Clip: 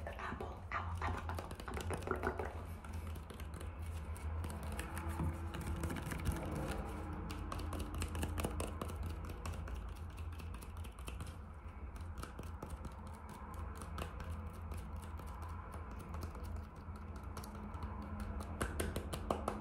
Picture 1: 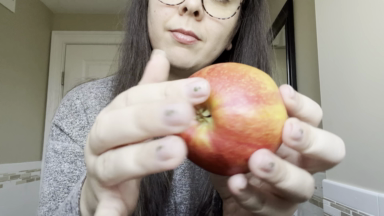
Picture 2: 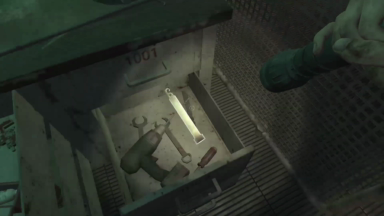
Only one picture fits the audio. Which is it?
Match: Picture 1